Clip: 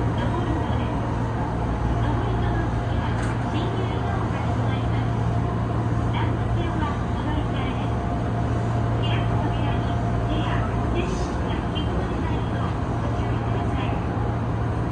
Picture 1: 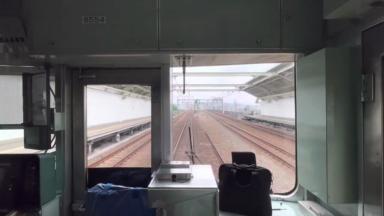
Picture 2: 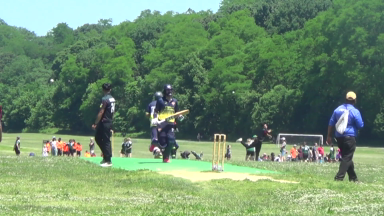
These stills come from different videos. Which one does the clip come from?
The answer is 1